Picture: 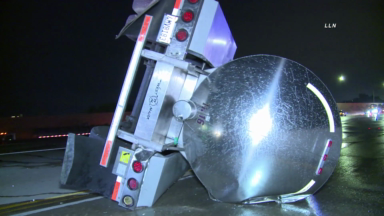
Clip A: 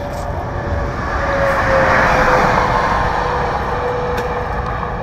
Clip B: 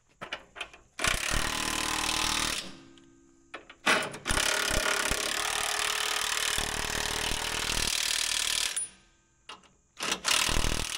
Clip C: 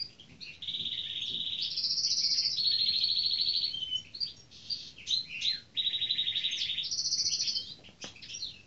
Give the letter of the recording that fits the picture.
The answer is A